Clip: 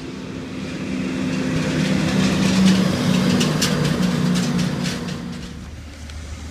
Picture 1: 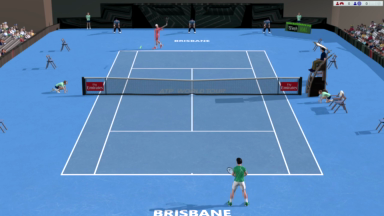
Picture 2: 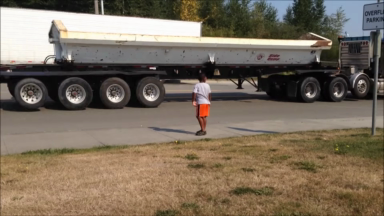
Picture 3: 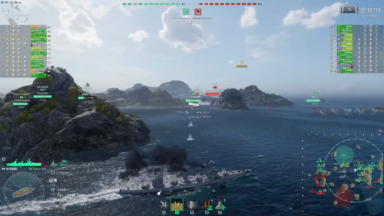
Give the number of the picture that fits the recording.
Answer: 2